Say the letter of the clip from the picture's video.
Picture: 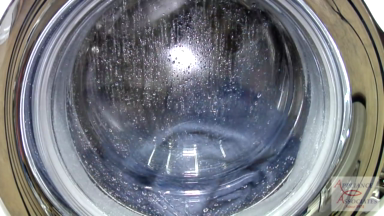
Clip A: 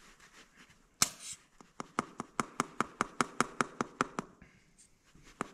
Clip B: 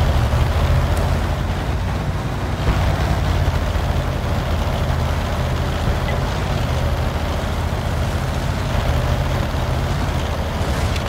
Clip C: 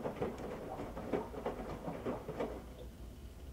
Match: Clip C